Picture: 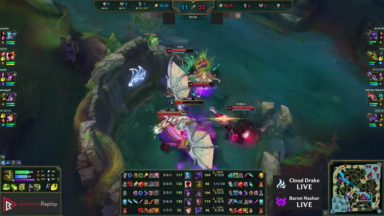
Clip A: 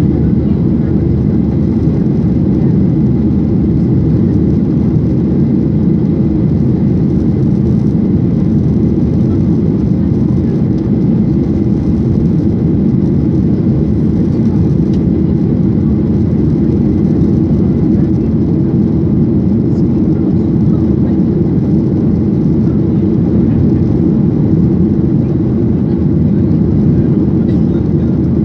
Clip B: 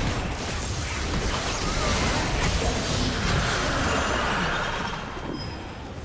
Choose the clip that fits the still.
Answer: B